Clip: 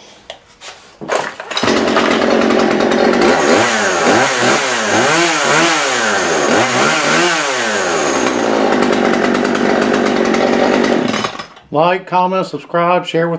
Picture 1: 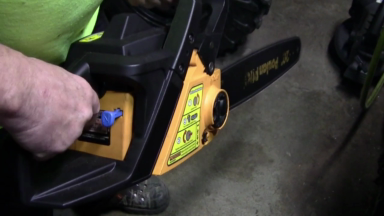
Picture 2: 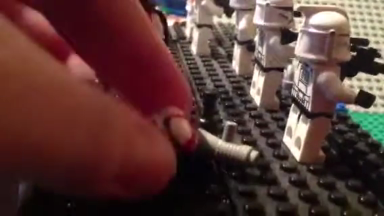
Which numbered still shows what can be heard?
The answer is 1